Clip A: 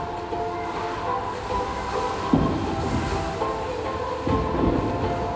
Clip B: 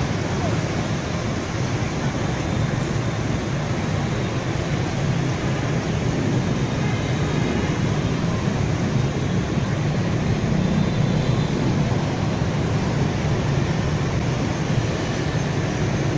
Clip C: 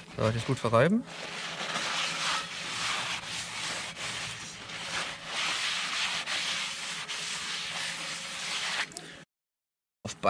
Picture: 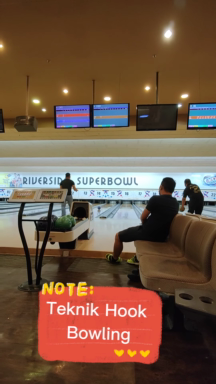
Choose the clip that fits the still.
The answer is A